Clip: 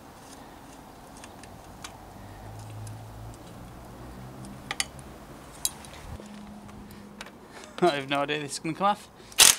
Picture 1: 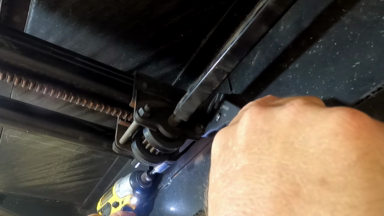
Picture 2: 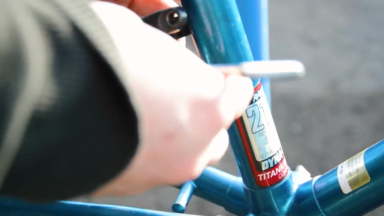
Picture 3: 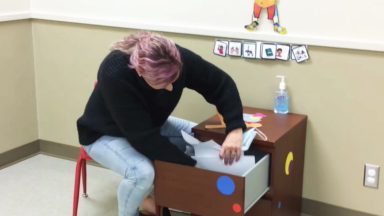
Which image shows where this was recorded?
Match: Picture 2